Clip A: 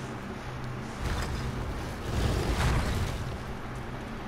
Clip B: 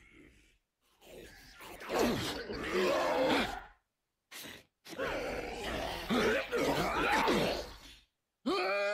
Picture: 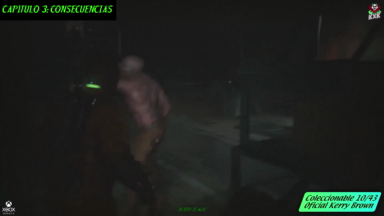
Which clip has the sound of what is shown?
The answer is B